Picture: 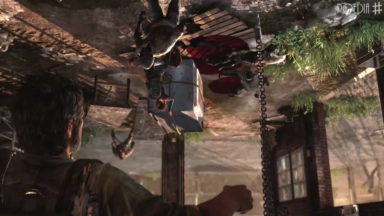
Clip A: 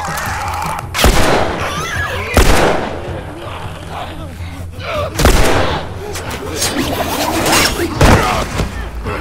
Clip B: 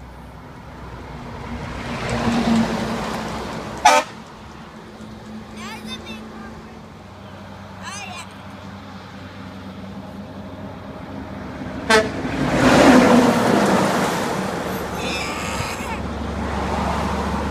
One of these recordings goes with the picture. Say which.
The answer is A